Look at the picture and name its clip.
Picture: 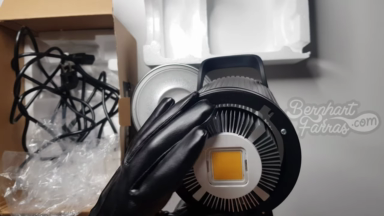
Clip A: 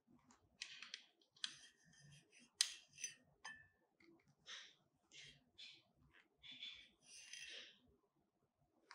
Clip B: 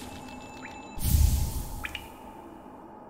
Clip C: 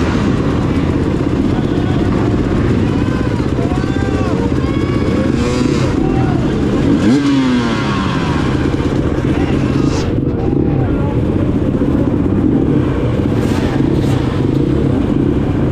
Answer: A